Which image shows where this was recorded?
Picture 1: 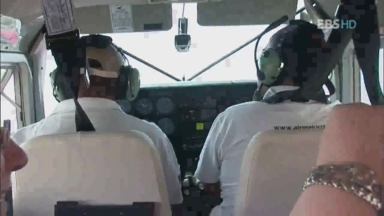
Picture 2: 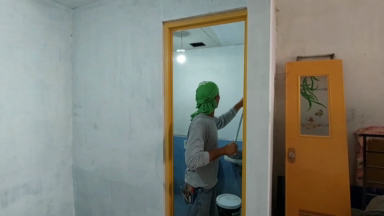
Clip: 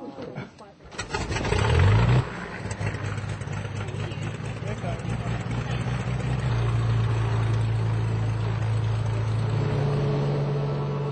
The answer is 1